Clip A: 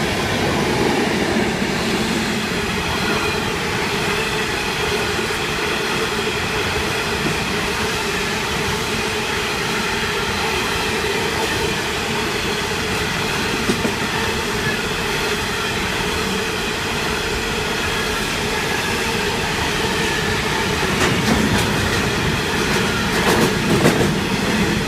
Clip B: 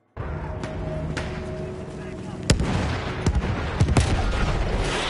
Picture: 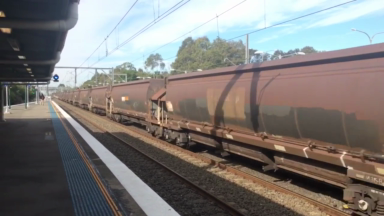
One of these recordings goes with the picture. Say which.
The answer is A